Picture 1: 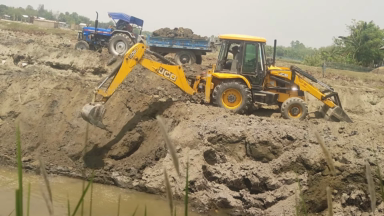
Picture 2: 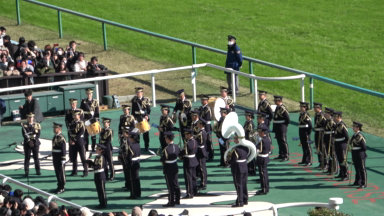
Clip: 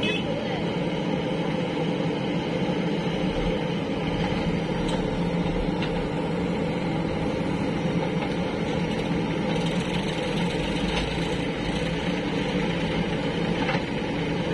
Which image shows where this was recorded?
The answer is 1